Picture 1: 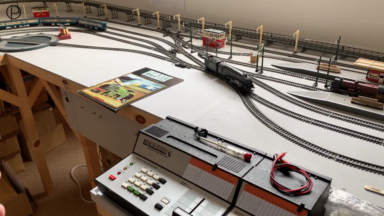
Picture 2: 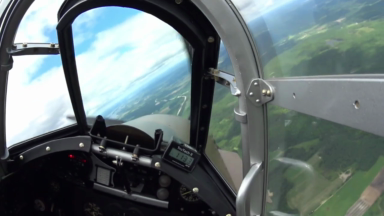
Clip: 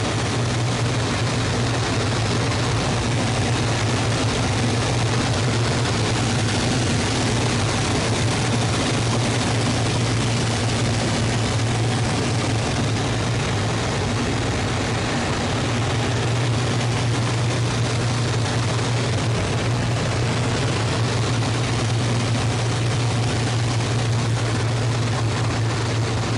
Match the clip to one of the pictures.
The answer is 2